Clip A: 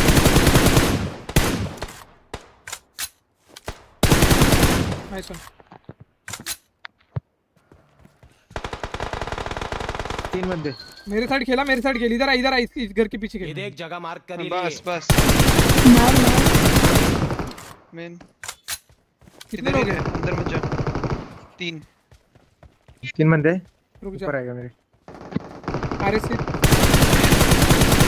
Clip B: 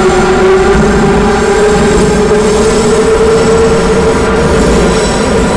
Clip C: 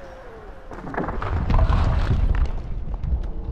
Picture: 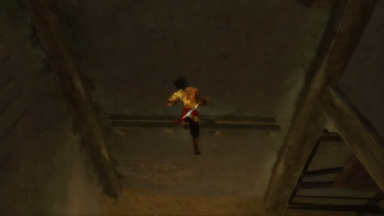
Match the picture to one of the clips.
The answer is C